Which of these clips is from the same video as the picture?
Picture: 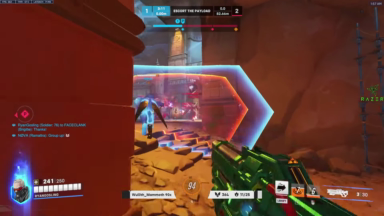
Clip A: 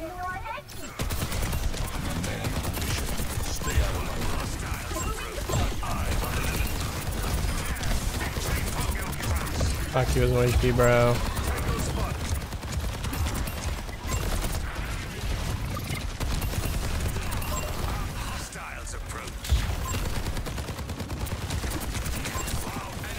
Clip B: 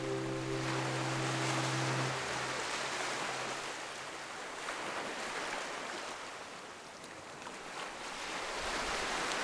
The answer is A